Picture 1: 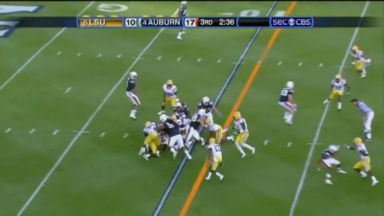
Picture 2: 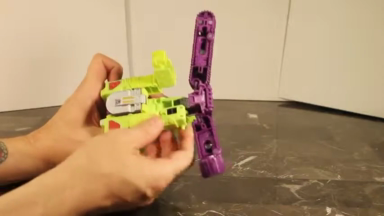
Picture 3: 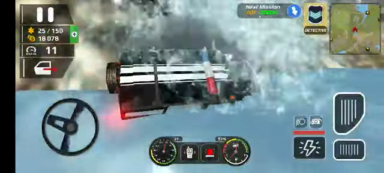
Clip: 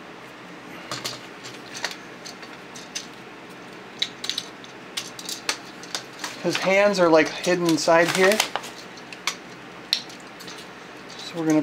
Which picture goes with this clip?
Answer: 2